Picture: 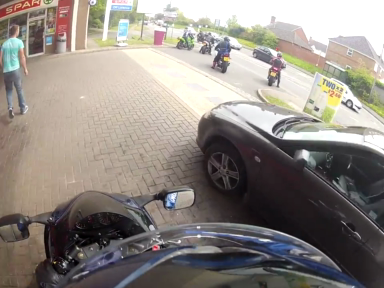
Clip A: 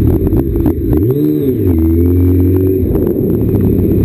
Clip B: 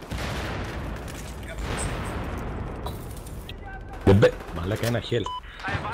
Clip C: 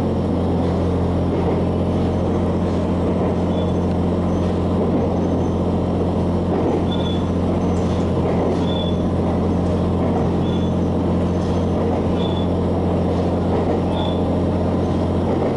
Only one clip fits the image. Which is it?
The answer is A